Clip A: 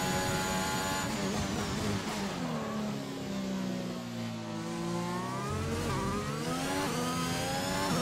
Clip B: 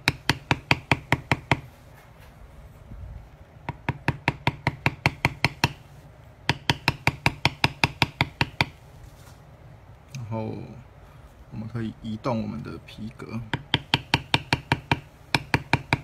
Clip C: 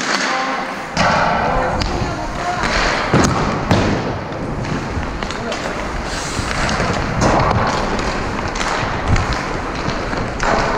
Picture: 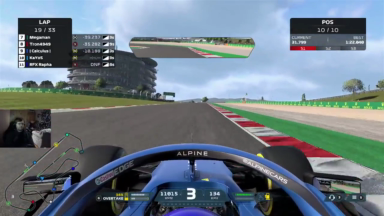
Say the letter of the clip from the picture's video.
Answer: A